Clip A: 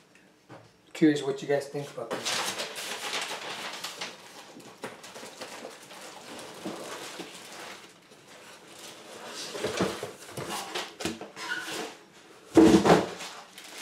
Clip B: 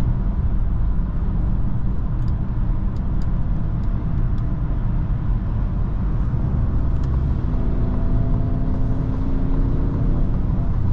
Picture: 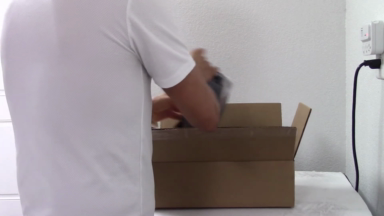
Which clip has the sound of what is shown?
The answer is A